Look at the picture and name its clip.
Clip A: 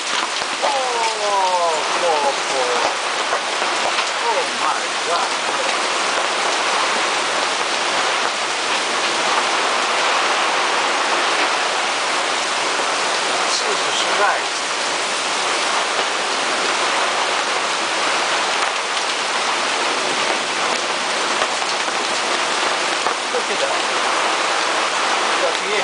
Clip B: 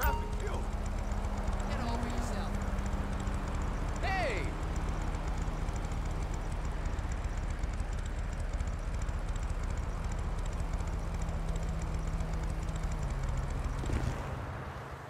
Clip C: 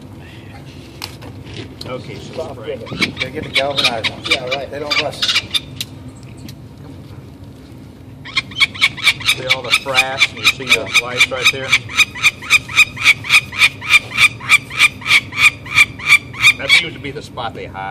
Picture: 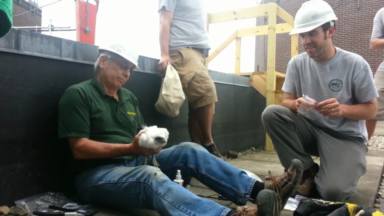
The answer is C